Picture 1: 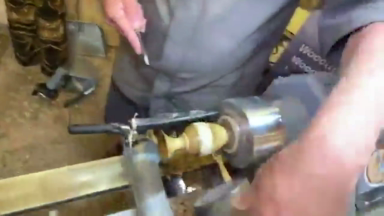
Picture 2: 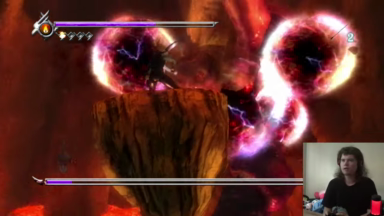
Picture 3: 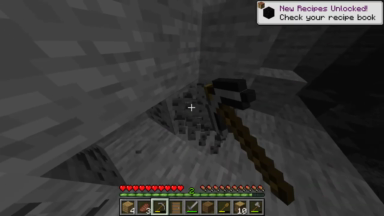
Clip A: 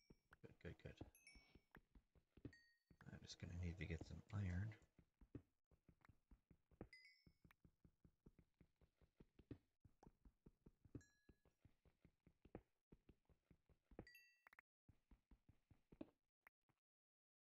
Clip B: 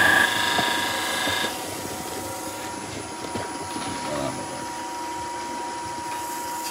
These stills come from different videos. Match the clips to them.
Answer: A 3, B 1